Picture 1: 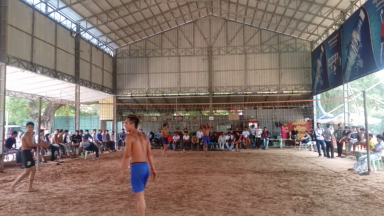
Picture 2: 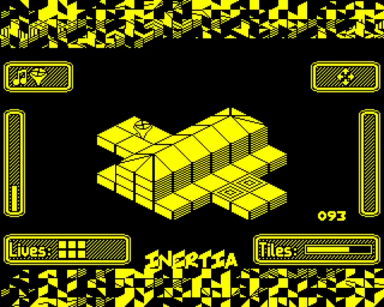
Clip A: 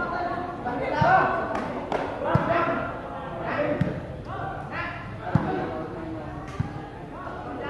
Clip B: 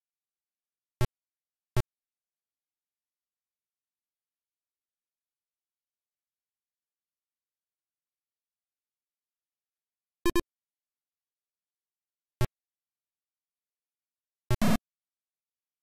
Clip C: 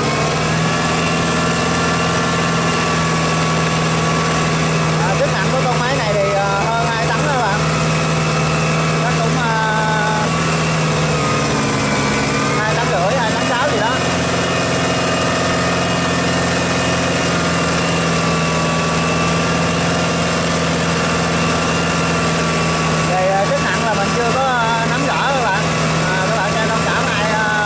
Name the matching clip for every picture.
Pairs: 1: A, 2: B